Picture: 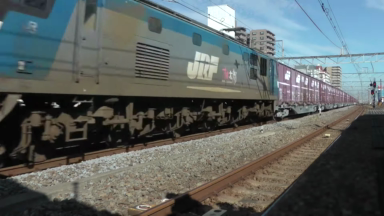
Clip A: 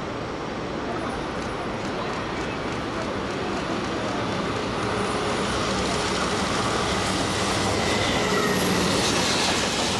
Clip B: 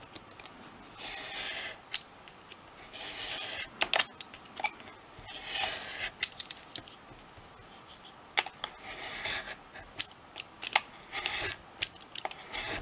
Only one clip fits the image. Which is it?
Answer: A